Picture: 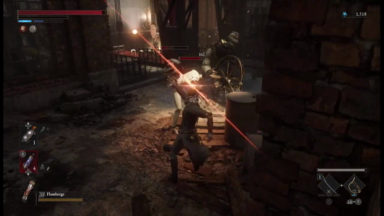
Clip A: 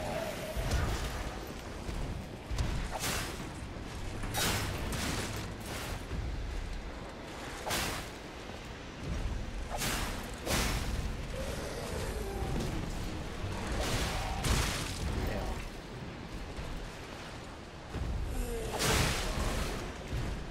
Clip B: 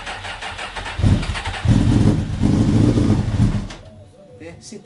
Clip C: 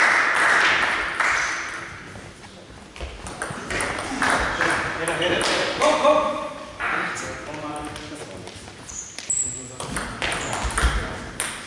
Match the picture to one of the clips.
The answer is A